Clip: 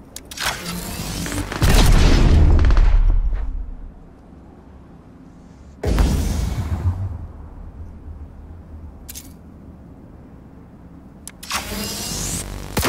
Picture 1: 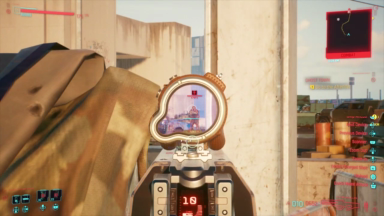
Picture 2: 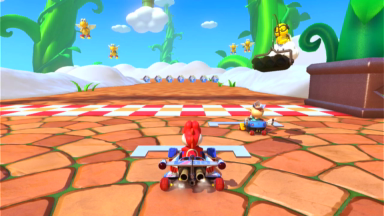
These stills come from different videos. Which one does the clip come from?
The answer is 1